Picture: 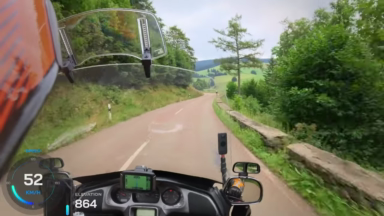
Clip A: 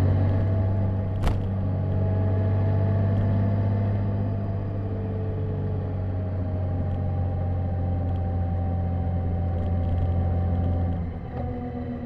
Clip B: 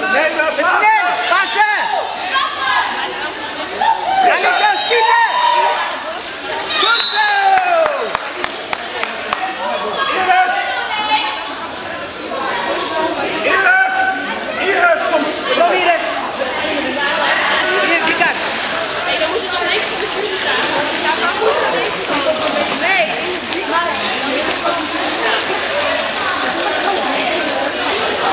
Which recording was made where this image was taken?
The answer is A